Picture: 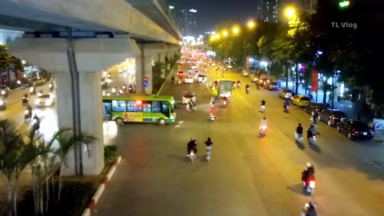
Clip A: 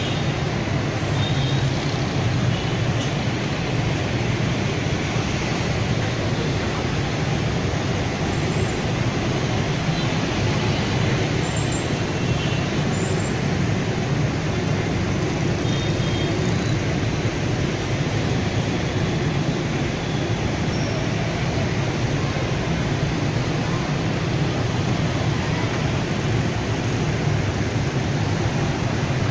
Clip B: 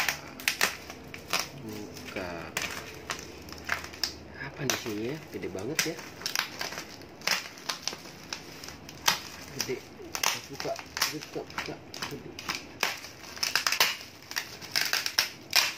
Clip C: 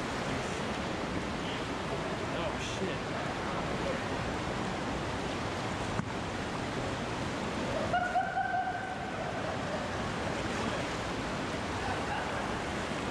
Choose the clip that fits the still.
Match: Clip A